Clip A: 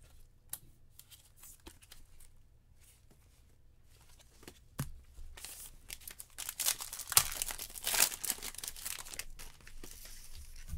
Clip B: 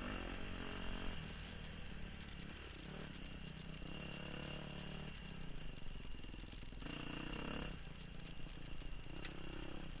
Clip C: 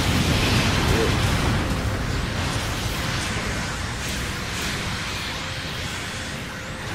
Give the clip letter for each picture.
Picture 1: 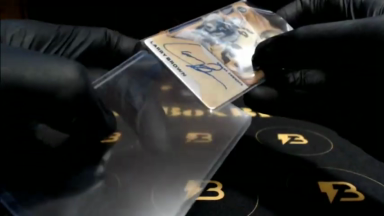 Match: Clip A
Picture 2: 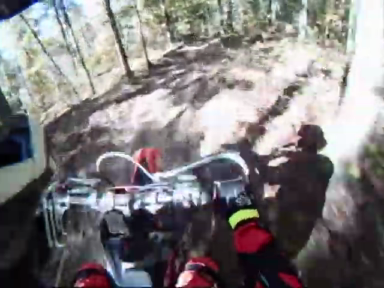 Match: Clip B